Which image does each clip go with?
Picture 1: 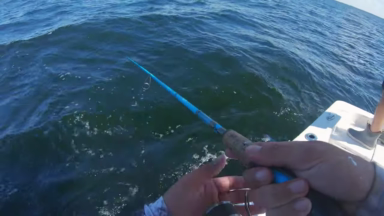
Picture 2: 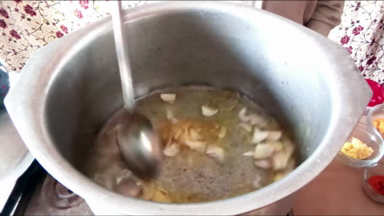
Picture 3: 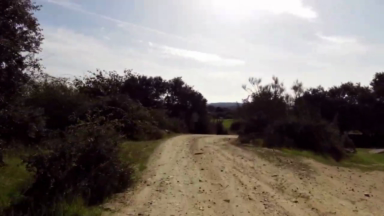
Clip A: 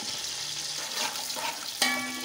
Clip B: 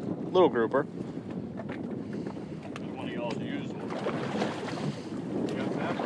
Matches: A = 2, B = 1